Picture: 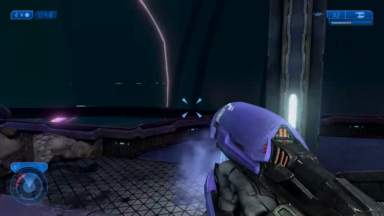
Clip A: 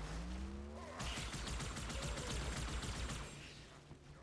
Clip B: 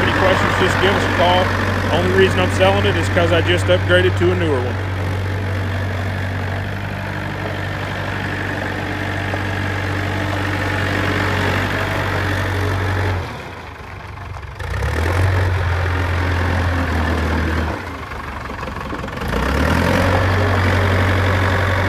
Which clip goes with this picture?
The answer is A